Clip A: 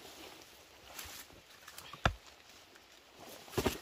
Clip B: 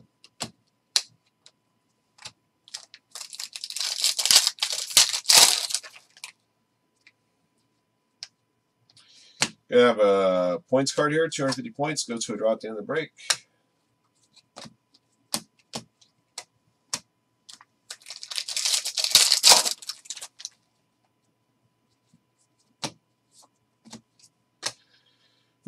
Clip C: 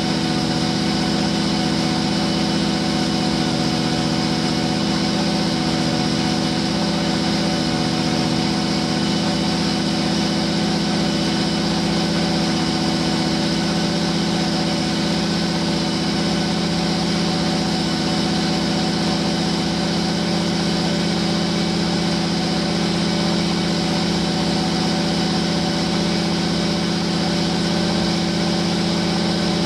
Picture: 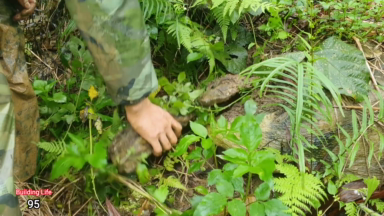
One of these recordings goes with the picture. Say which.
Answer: A